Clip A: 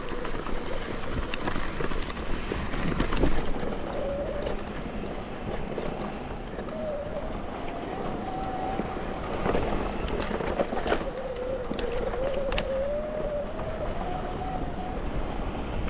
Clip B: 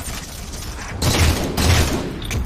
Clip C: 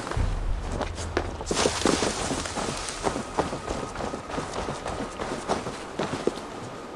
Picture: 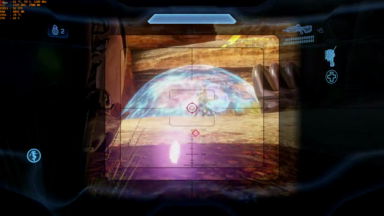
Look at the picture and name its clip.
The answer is B